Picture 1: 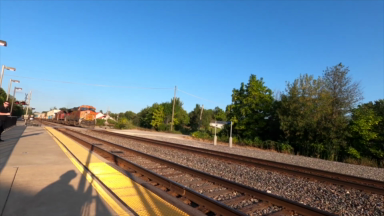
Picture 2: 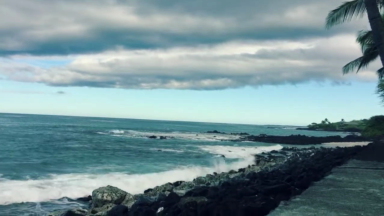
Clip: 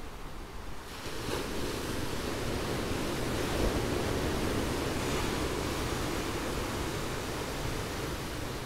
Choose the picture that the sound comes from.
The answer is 2